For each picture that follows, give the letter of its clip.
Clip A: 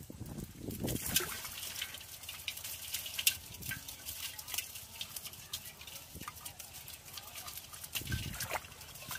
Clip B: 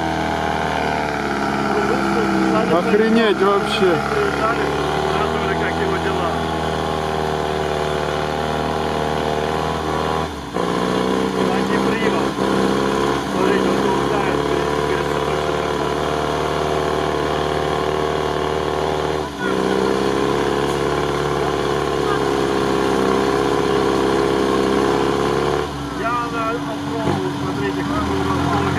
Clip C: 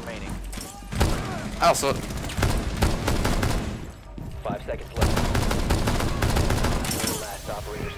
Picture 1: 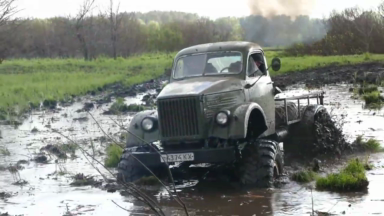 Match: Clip B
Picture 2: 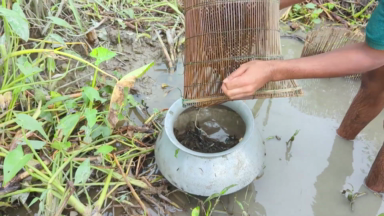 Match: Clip A